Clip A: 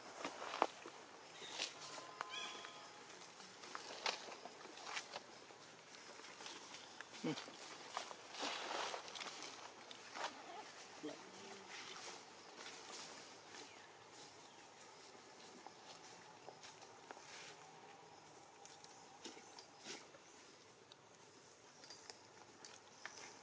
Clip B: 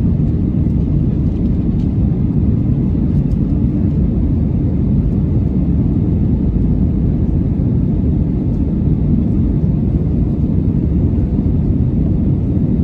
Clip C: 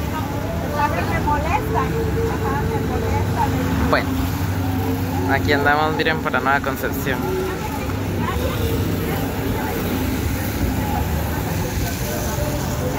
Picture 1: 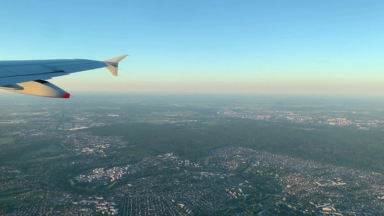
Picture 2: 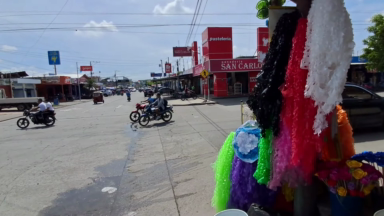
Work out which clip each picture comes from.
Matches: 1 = B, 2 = C